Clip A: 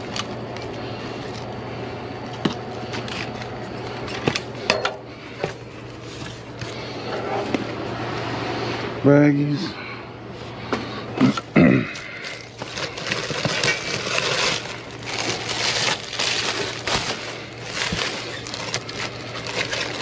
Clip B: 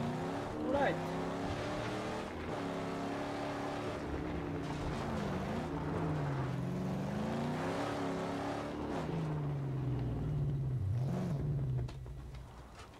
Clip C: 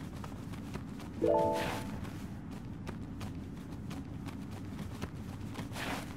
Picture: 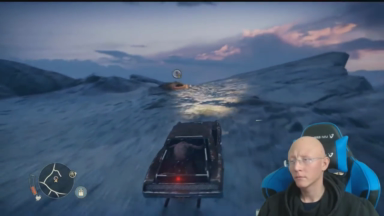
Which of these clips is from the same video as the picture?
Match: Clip B